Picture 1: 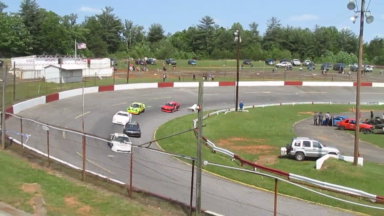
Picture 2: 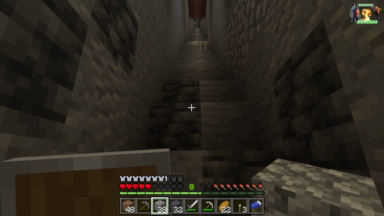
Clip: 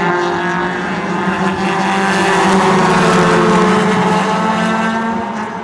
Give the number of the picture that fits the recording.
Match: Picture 1